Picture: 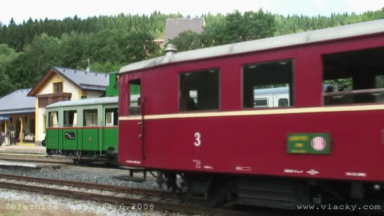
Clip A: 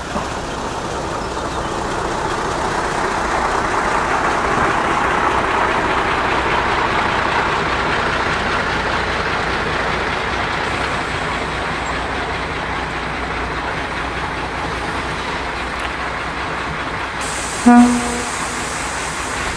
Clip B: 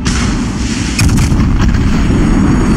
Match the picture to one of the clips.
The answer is A